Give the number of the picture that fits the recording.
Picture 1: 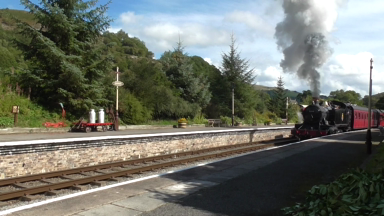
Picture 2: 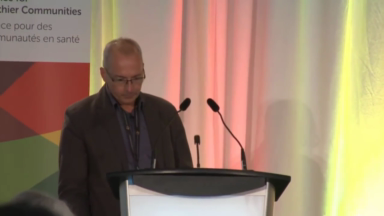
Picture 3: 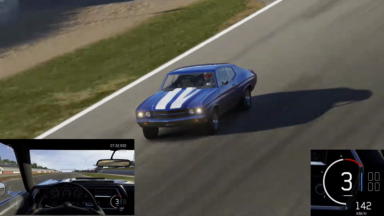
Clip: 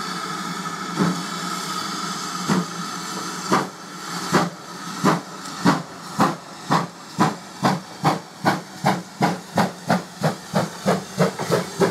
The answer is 1